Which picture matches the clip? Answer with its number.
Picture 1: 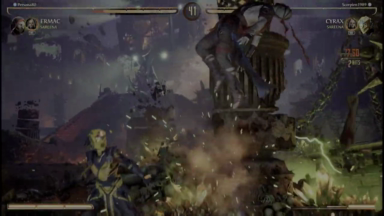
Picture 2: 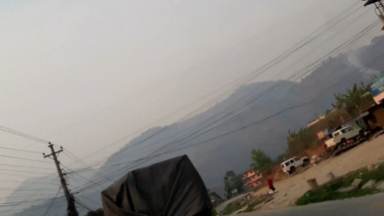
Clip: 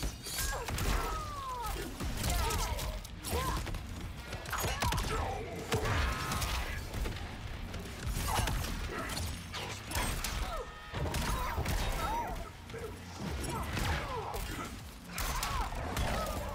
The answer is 1